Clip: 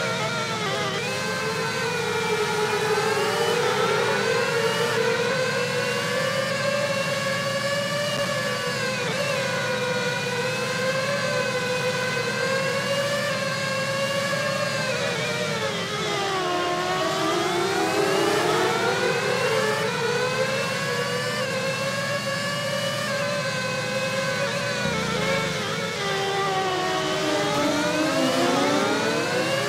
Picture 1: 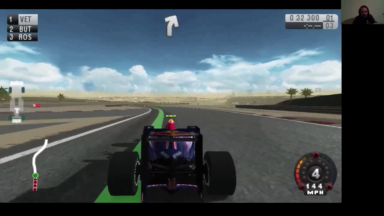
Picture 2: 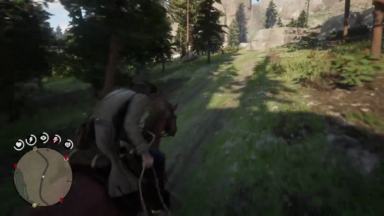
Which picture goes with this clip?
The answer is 1